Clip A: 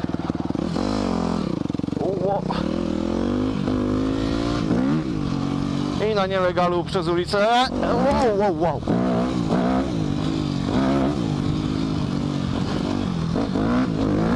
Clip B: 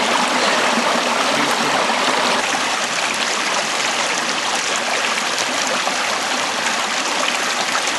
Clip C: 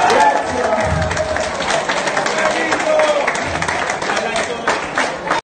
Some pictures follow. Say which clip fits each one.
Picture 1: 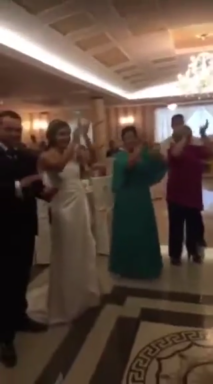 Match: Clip C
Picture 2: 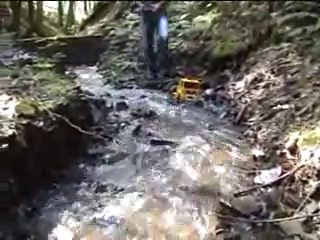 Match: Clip B